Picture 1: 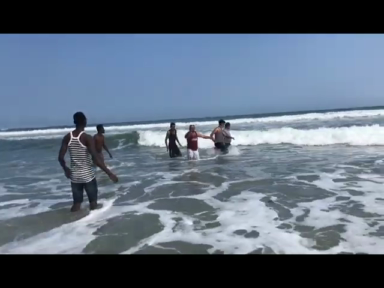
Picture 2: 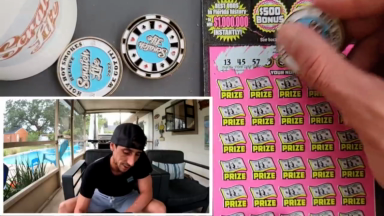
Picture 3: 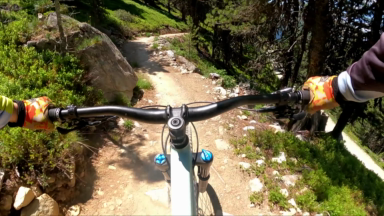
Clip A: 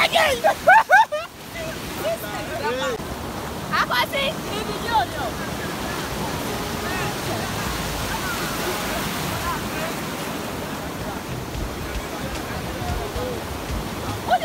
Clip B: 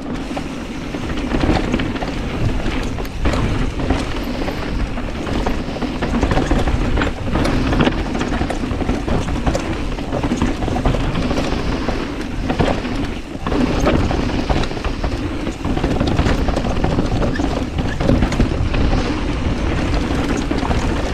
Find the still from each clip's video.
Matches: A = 1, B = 3